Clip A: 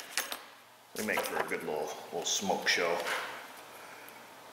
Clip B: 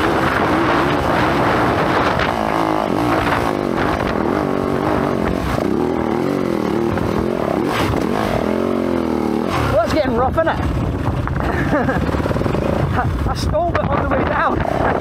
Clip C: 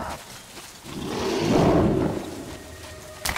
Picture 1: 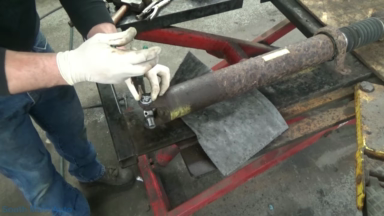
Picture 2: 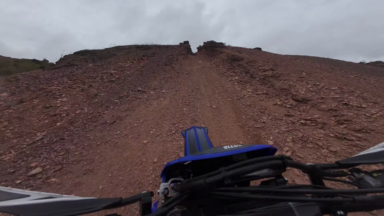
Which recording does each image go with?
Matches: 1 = A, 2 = B